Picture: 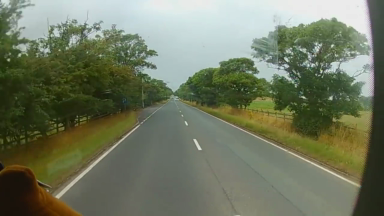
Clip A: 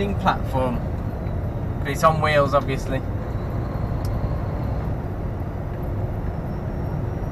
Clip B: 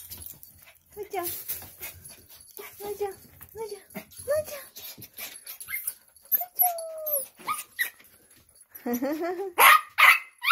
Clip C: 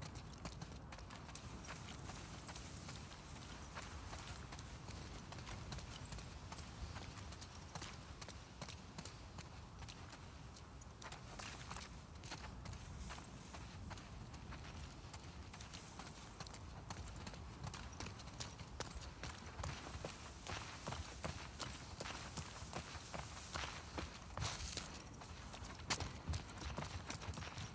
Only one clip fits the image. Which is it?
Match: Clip A